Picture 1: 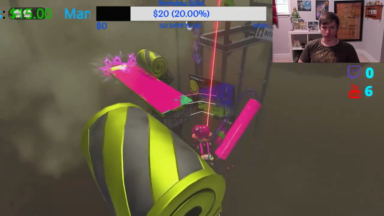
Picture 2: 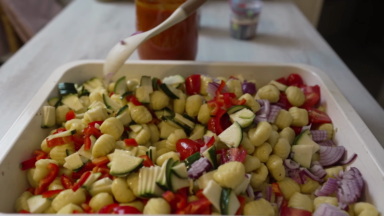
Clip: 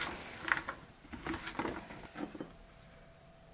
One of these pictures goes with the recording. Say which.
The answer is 2